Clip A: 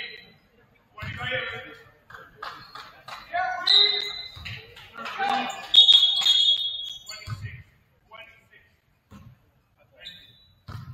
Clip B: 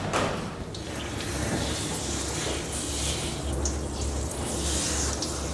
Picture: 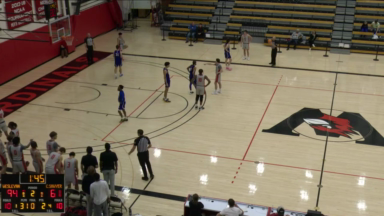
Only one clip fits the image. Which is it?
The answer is A